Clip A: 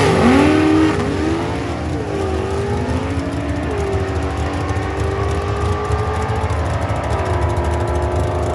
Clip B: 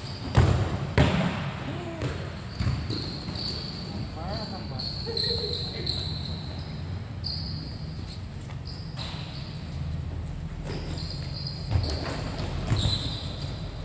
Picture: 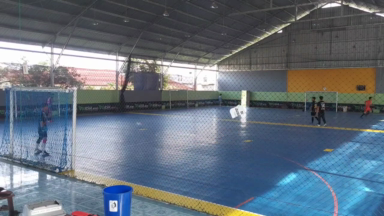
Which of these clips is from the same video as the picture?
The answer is B